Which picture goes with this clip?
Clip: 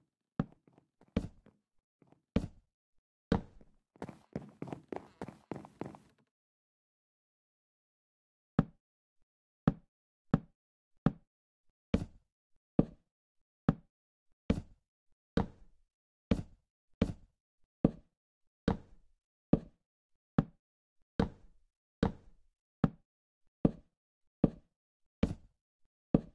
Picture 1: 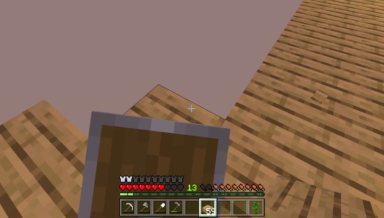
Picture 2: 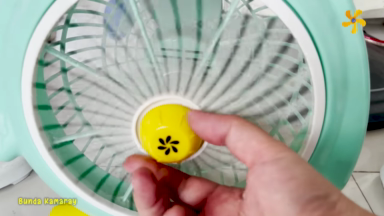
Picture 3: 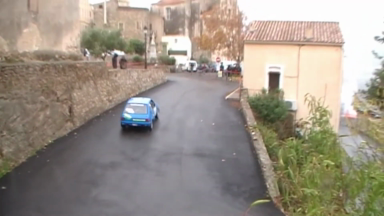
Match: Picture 1